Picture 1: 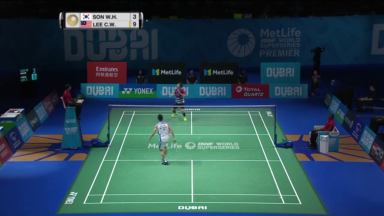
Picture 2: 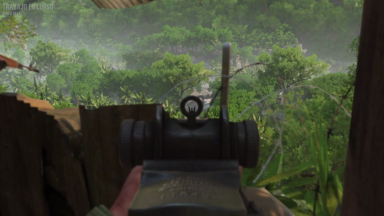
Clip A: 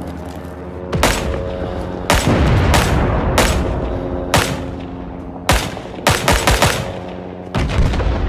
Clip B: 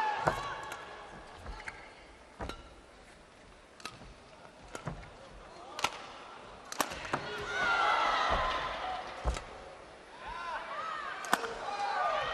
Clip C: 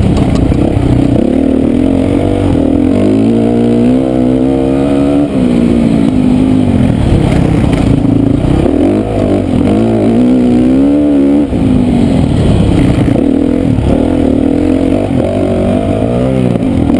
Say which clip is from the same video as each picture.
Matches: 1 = B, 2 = A